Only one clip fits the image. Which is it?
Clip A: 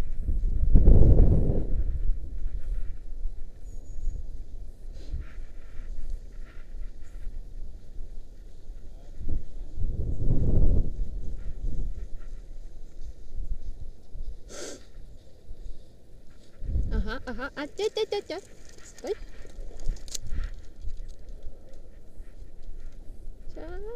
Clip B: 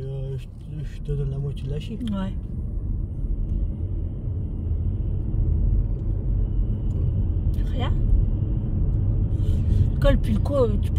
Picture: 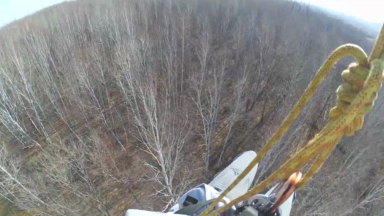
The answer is A